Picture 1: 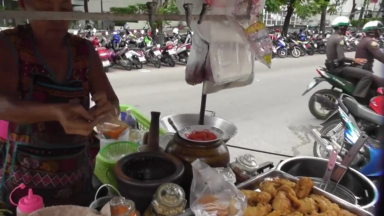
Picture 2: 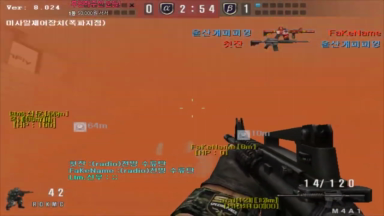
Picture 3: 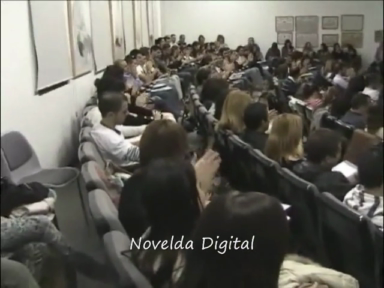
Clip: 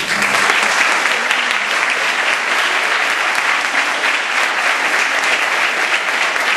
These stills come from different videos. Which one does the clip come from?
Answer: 3